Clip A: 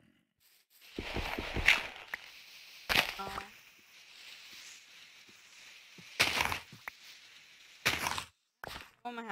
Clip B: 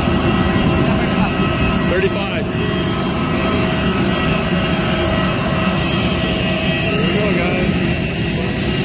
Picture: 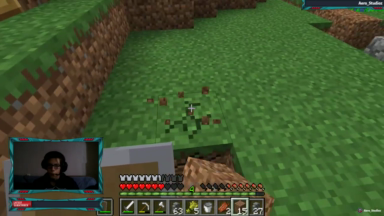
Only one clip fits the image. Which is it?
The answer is A